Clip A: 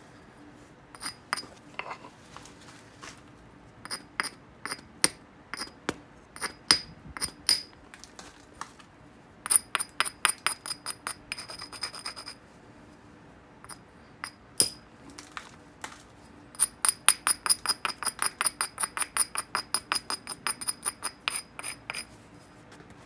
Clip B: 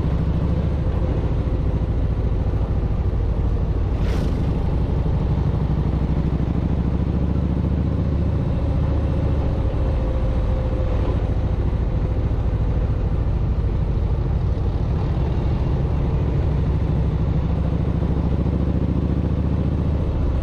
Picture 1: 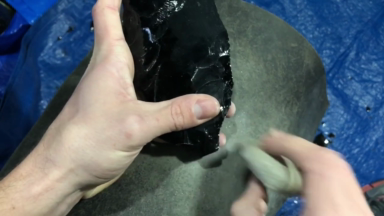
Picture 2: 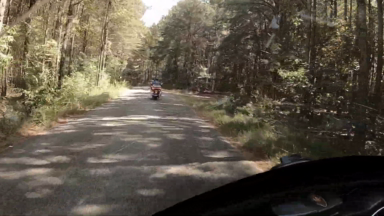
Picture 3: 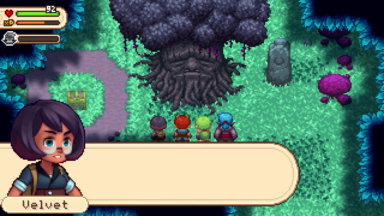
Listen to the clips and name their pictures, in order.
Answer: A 1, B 2